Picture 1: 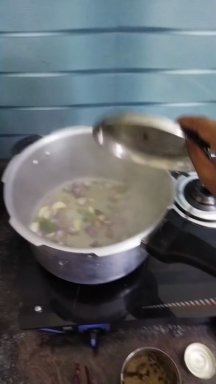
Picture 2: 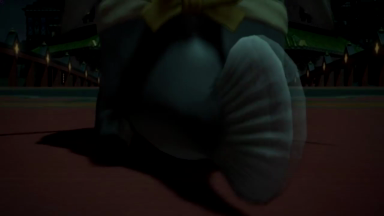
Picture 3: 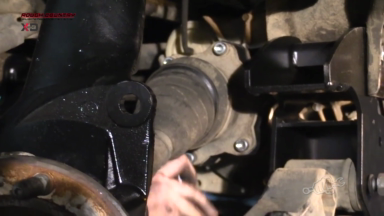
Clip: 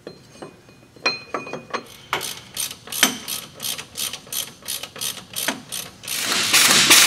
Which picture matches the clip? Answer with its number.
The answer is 3